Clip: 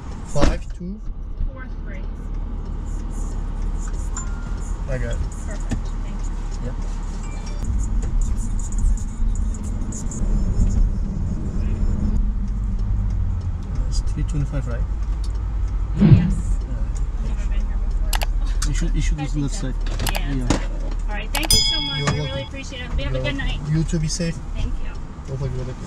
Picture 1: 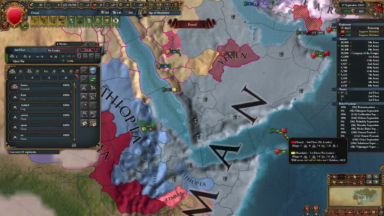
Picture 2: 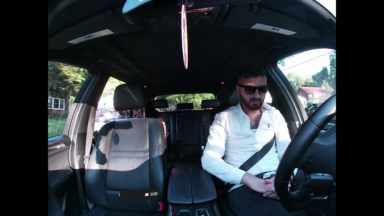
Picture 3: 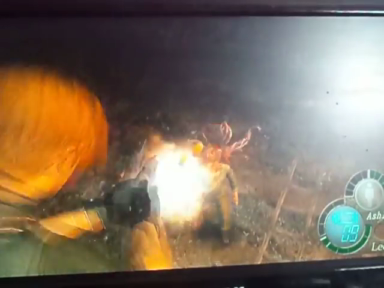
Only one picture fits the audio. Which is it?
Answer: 2